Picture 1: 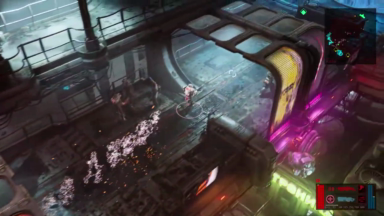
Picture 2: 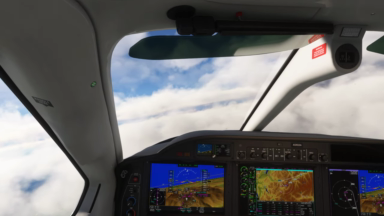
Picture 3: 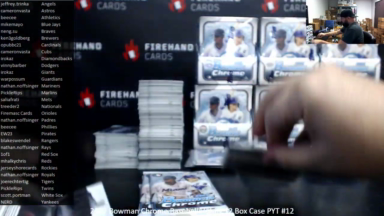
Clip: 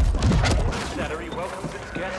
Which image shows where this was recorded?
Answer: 1